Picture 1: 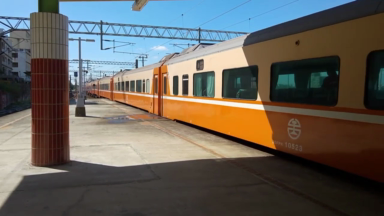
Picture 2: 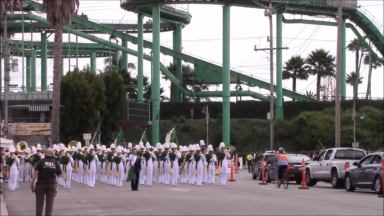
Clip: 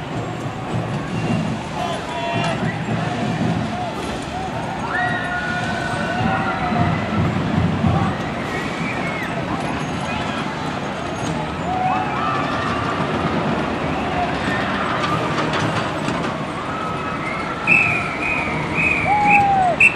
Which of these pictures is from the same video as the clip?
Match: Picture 2